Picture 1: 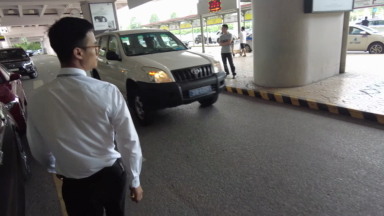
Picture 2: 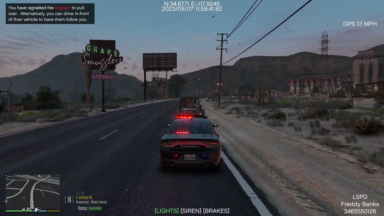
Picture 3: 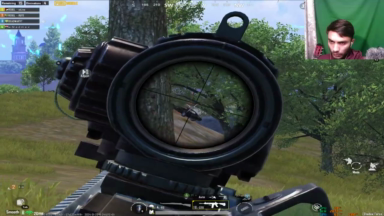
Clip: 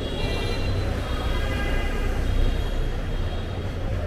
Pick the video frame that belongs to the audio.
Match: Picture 1